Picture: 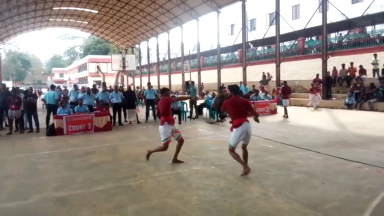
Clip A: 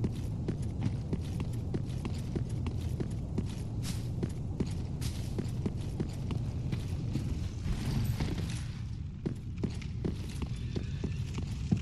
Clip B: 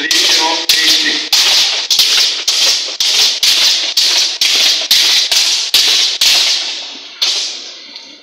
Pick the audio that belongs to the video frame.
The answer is B